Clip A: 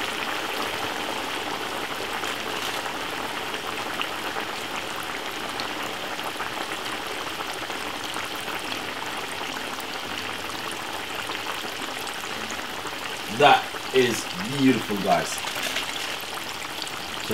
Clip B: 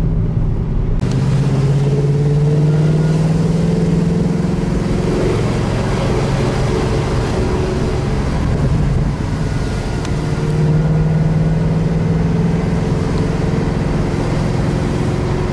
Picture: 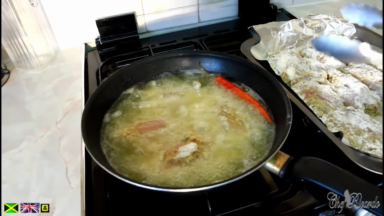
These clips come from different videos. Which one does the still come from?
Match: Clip A